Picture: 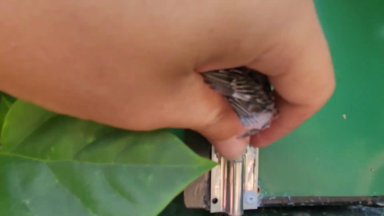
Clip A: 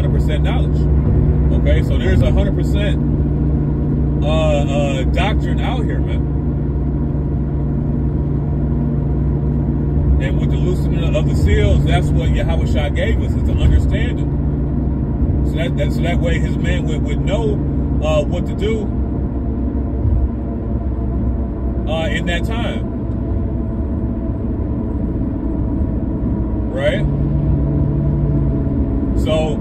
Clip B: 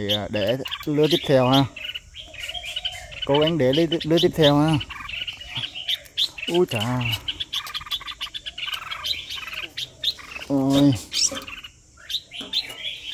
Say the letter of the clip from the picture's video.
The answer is B